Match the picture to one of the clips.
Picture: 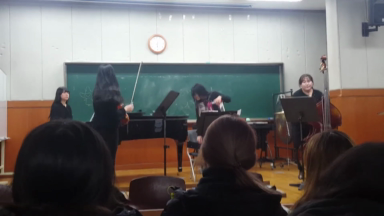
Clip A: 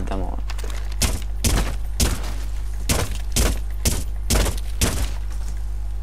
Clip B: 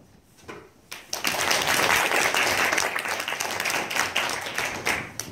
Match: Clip B